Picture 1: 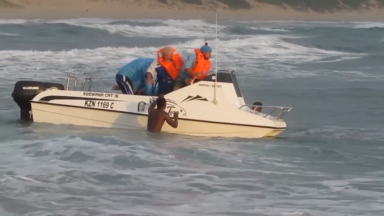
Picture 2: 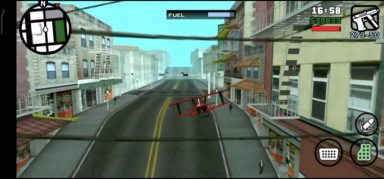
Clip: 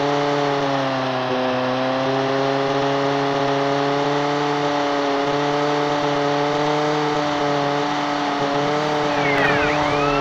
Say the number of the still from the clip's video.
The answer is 2